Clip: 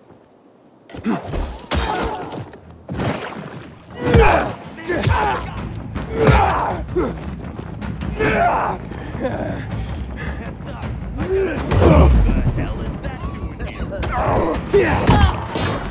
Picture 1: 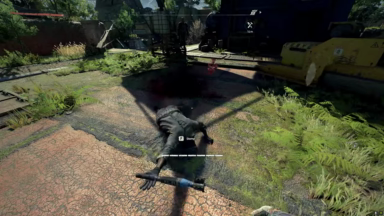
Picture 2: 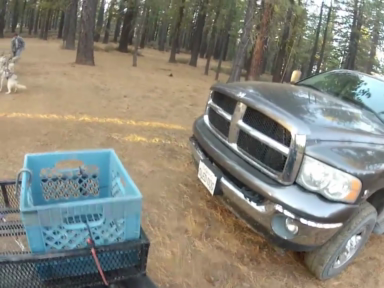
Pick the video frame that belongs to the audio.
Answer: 1